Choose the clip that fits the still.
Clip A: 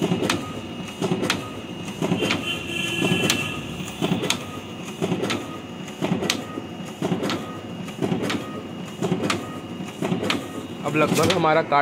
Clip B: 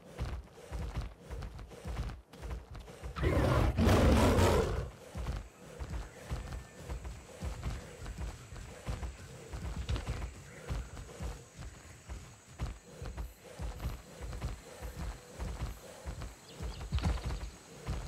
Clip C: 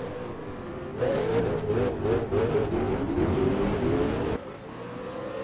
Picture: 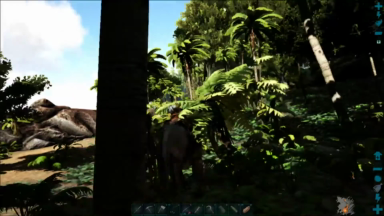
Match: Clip B